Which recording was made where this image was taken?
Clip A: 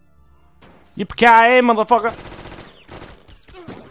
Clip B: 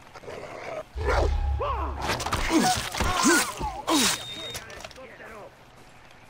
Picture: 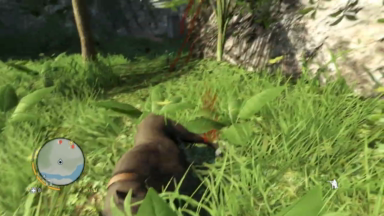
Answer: B